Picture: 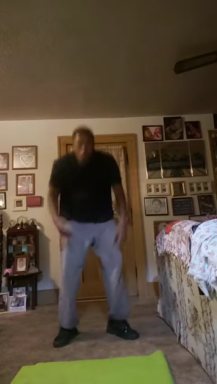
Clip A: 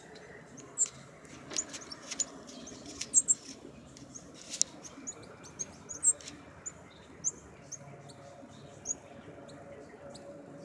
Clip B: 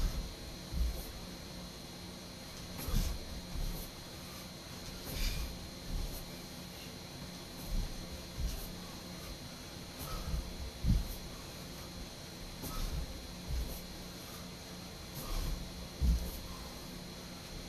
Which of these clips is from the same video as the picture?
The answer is B